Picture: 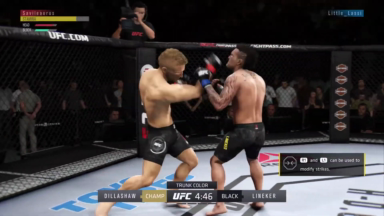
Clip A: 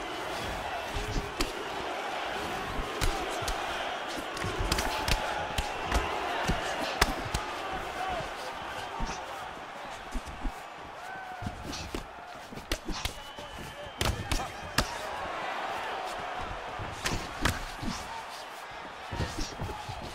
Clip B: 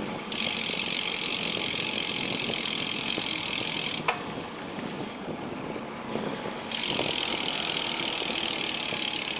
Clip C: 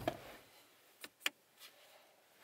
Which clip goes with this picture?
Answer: A